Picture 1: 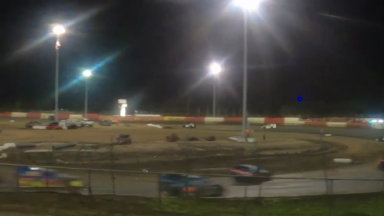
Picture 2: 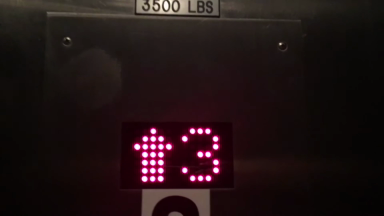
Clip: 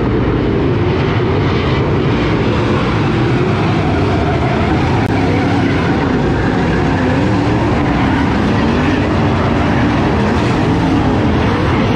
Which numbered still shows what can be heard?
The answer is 1